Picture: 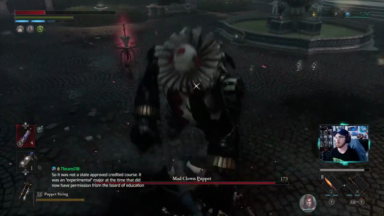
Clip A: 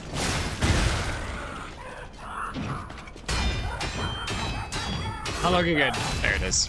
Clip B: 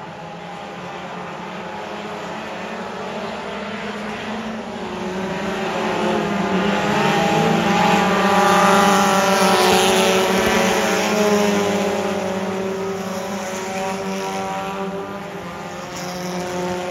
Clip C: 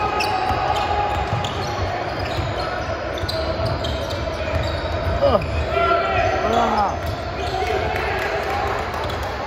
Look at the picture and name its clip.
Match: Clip A